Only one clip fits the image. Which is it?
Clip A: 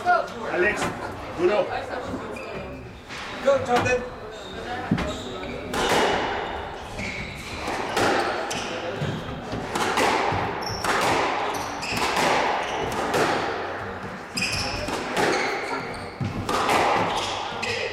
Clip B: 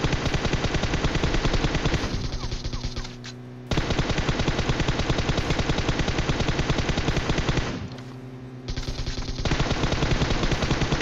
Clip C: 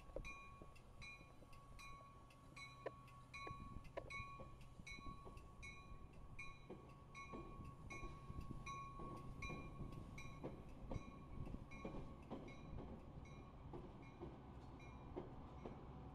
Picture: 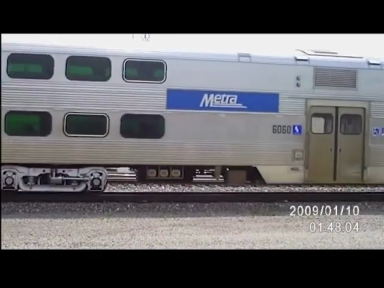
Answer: C